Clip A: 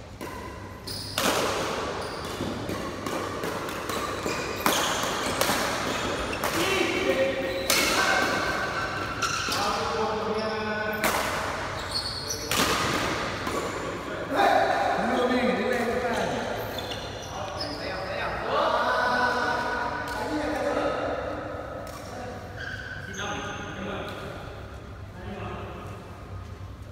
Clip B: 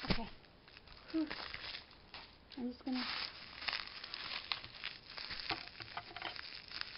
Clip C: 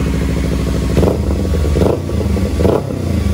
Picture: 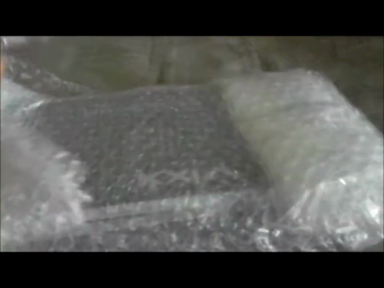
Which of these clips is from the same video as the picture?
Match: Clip B